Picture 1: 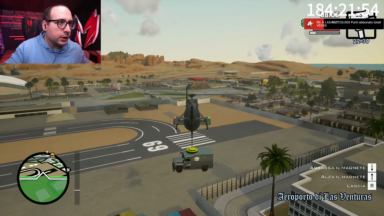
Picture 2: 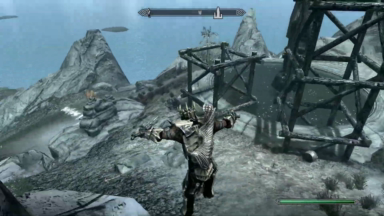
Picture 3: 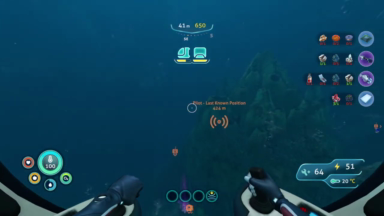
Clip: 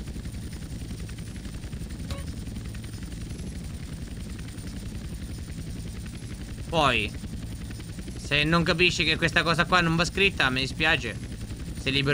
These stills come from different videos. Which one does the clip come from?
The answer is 1